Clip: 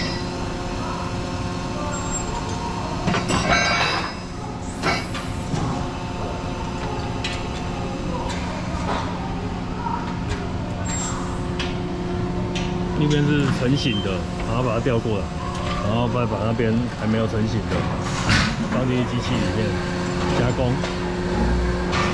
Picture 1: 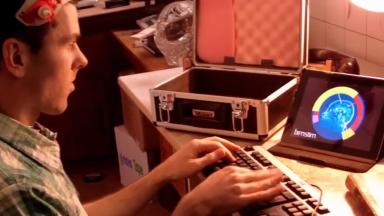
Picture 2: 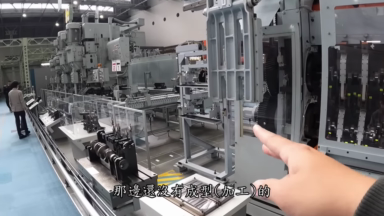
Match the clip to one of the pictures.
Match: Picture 2